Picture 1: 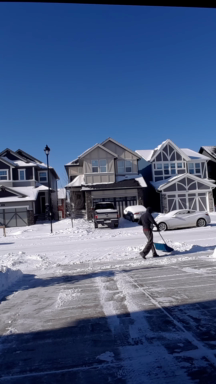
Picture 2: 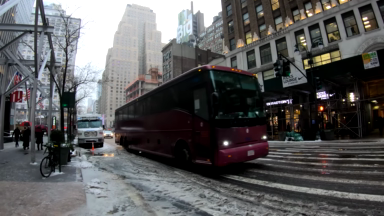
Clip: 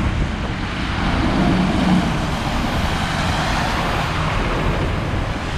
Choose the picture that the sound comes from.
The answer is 2